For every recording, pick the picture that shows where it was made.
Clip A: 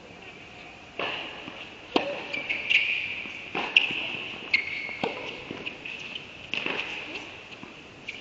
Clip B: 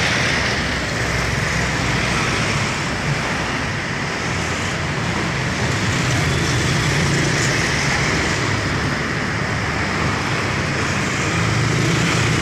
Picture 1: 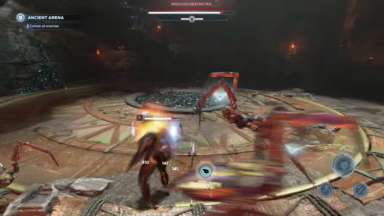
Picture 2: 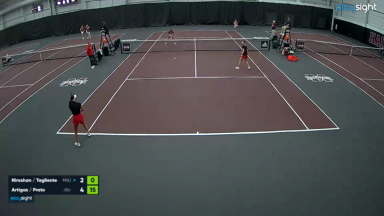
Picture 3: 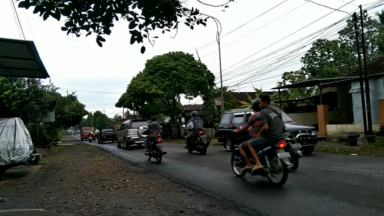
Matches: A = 2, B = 3